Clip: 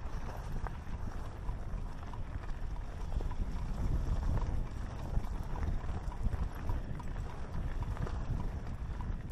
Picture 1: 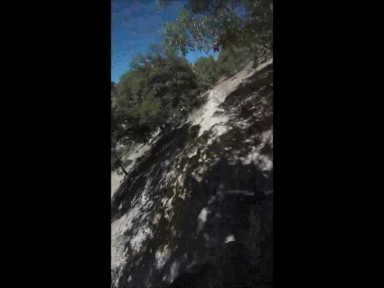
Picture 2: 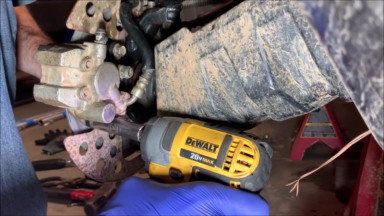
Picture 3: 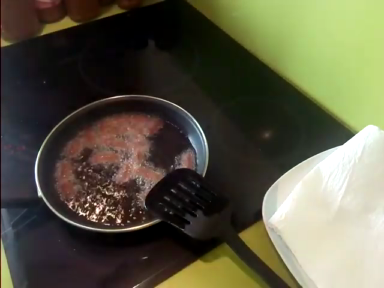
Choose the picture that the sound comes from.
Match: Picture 1